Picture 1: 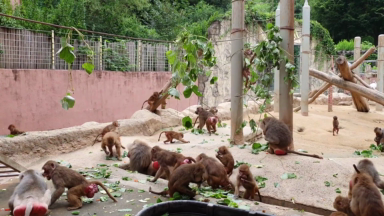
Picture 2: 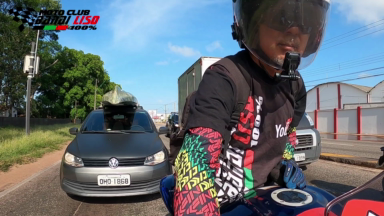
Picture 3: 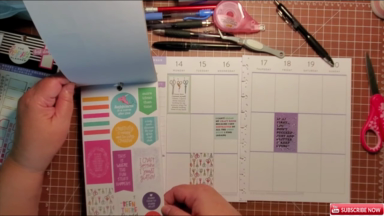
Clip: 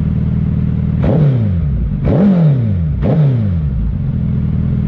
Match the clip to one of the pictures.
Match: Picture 2